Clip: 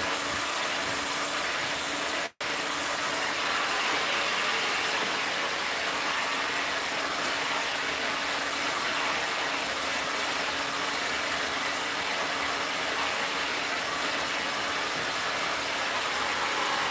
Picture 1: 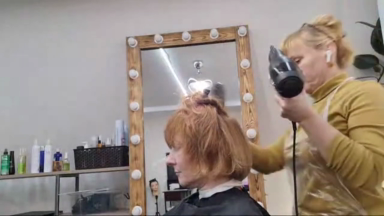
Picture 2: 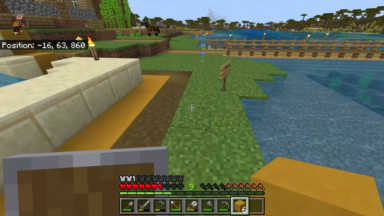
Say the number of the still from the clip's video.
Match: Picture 1